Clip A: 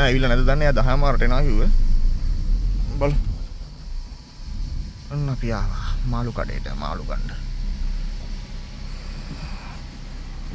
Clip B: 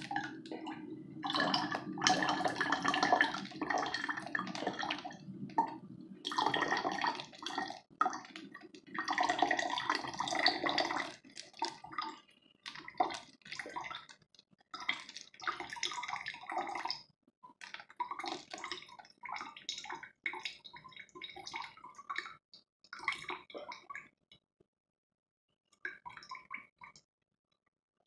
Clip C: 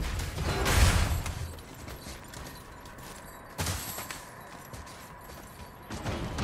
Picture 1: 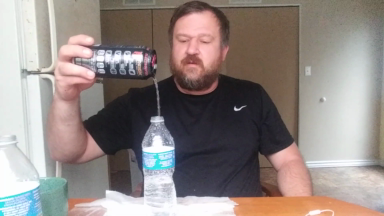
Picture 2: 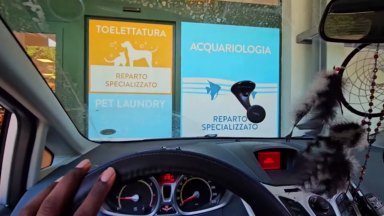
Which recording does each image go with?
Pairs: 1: B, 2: A